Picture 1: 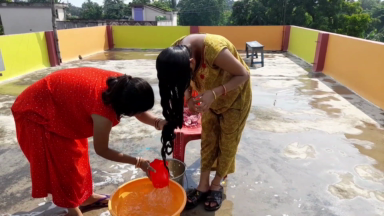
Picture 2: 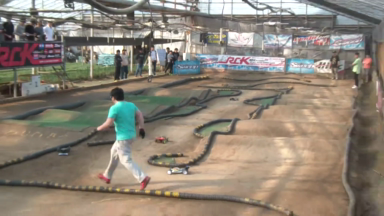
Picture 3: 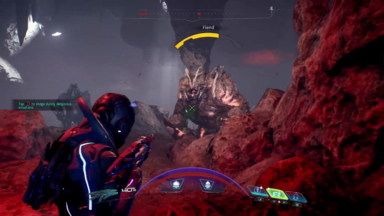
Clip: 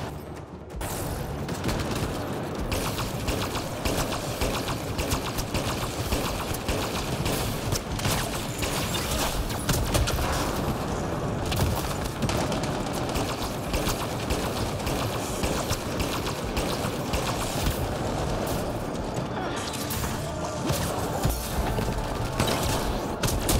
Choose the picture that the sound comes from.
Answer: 3